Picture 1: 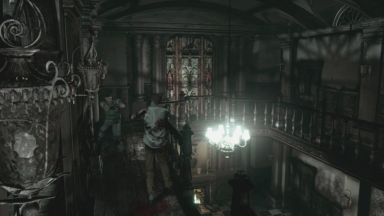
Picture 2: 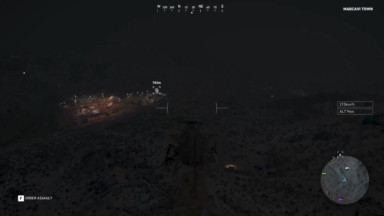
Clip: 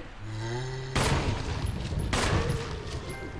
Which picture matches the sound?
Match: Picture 1